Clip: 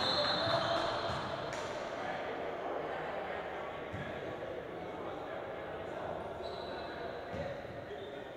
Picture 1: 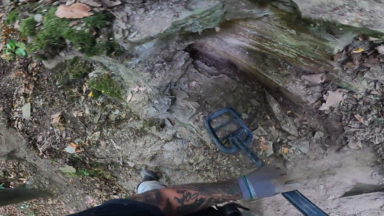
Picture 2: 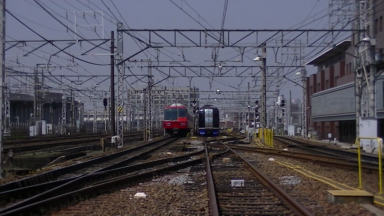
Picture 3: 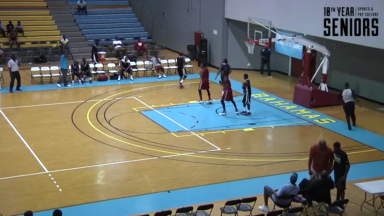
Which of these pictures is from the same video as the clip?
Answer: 3